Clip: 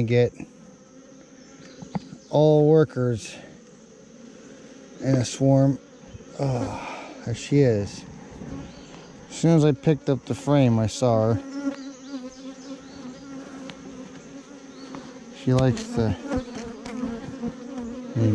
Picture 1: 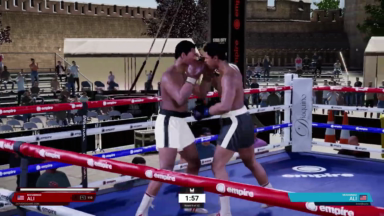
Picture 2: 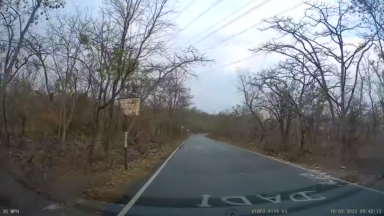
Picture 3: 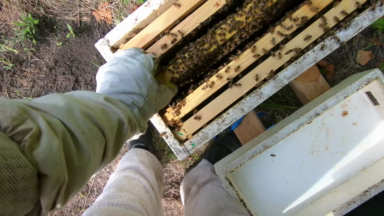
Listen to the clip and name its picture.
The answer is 3